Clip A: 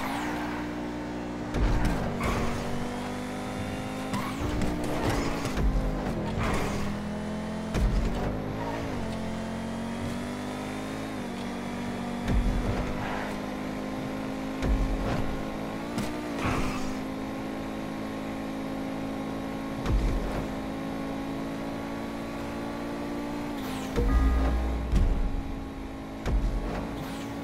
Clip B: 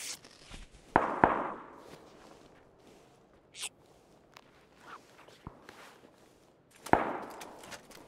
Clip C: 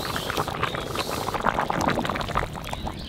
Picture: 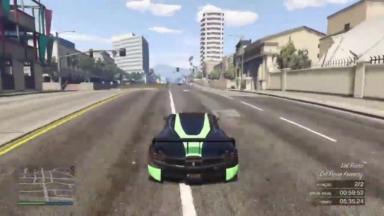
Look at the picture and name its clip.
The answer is A